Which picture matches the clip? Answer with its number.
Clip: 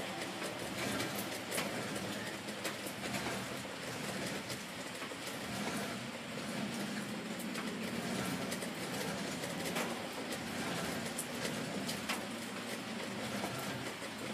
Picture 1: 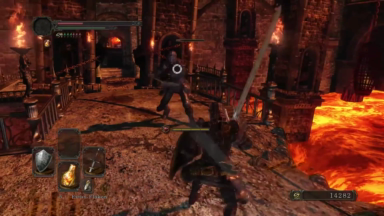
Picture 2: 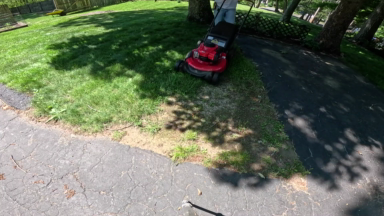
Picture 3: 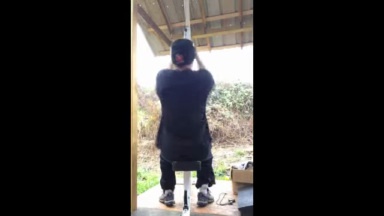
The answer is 3